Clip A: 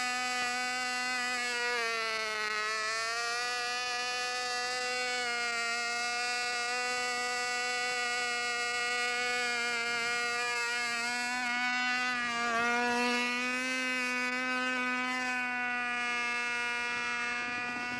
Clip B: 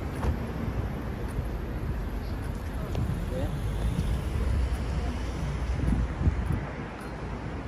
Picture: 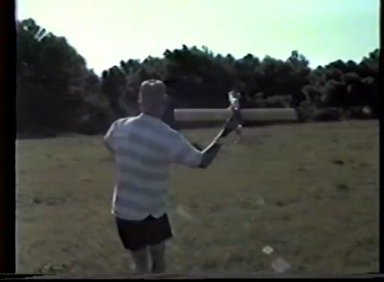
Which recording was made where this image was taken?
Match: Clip A